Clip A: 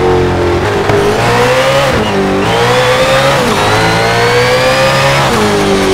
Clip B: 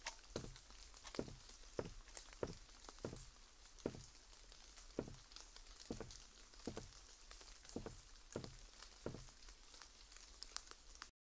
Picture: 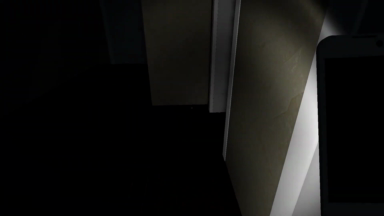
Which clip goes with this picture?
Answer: B